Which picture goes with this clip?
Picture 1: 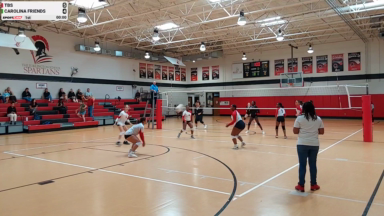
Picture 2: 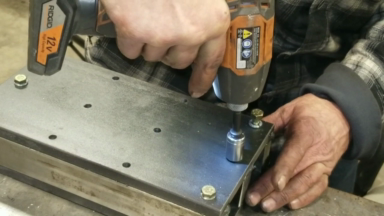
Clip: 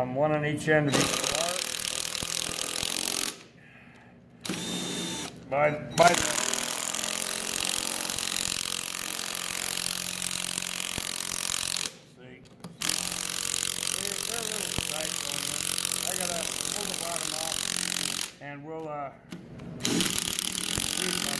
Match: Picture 2